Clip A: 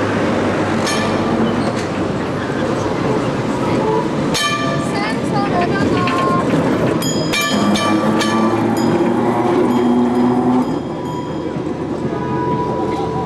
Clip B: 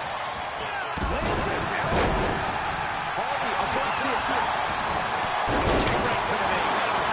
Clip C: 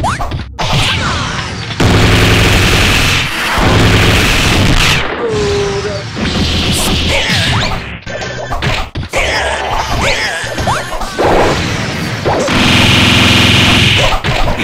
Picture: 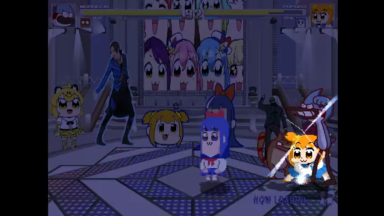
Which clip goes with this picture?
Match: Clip C